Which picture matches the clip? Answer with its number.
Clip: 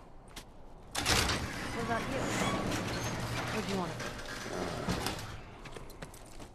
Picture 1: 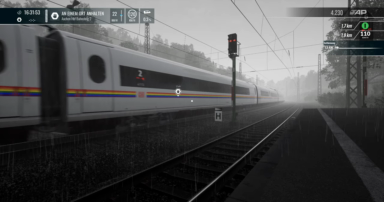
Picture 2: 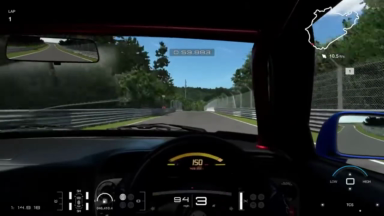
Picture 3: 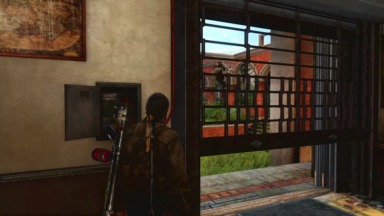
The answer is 3